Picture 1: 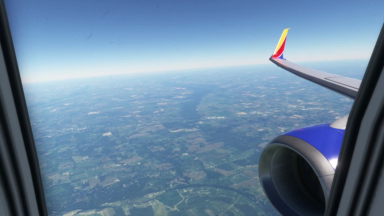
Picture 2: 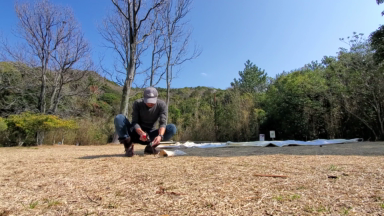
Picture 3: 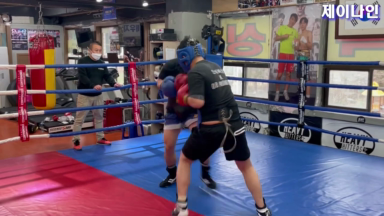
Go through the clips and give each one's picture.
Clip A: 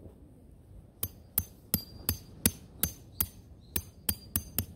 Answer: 2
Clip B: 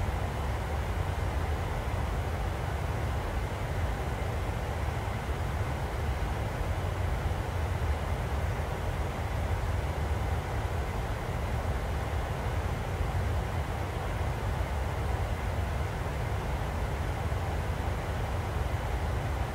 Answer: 1